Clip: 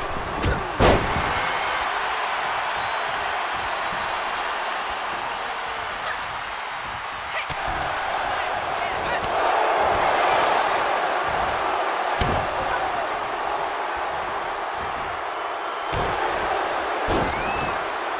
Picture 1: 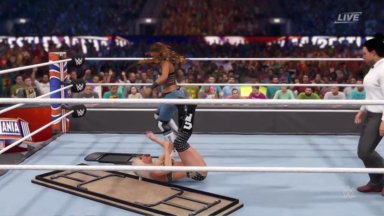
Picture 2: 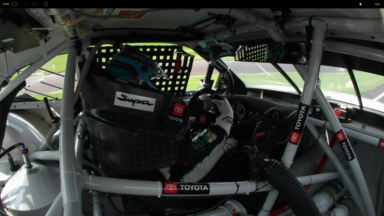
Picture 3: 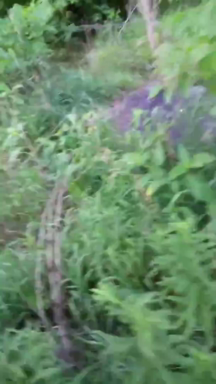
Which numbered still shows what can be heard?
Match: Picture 1